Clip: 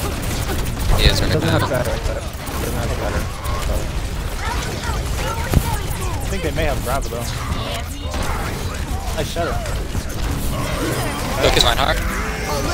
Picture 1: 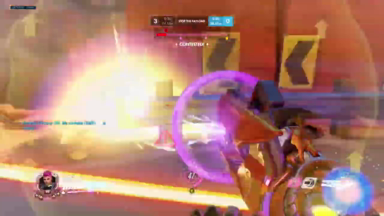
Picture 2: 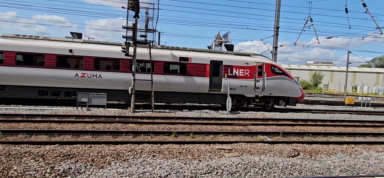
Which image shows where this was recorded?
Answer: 1